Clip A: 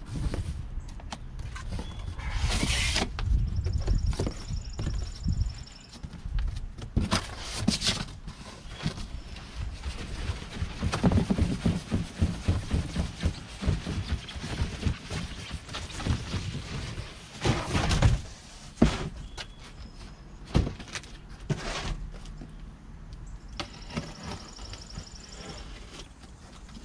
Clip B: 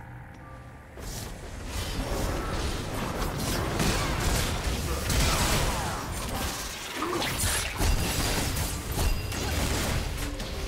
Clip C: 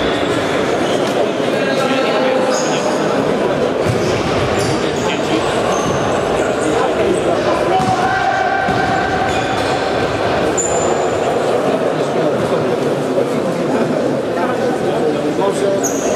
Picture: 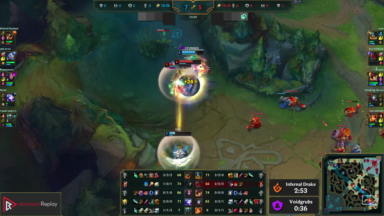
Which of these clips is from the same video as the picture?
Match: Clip B